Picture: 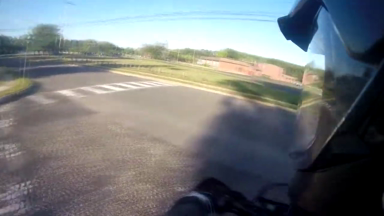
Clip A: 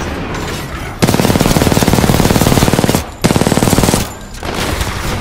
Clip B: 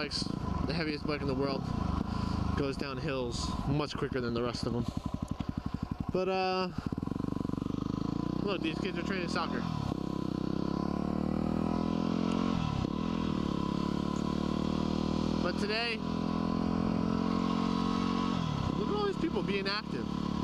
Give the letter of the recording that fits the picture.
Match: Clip B